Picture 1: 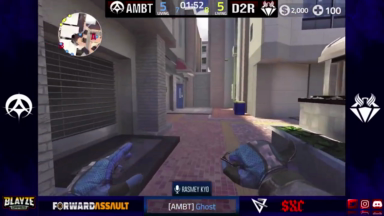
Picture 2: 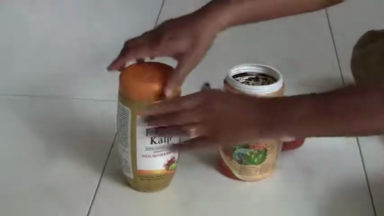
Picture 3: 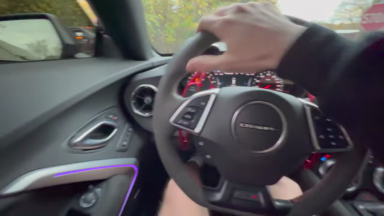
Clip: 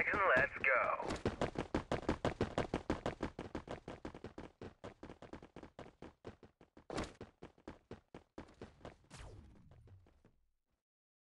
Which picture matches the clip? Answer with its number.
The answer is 1